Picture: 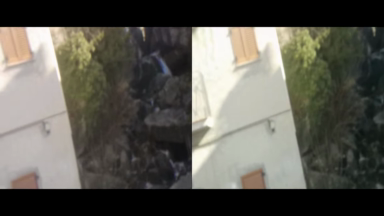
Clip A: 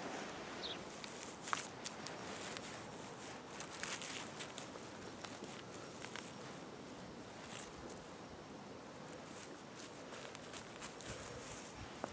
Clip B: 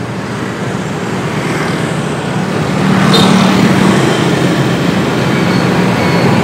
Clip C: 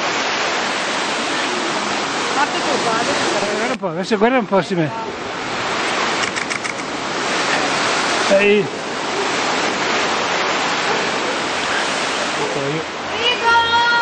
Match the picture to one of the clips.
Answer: C